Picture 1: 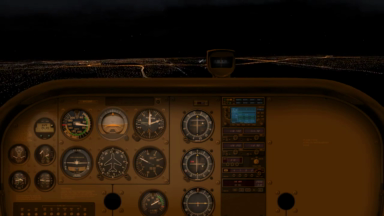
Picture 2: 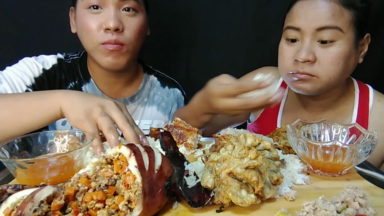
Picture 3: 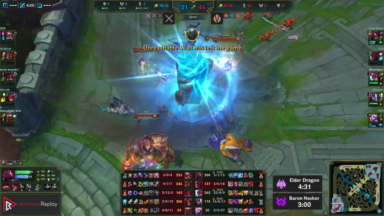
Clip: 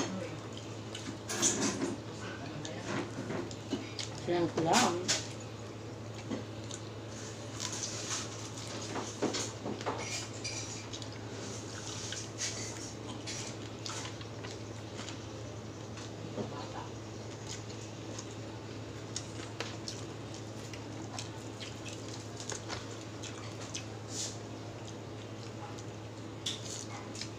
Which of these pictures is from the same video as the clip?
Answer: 2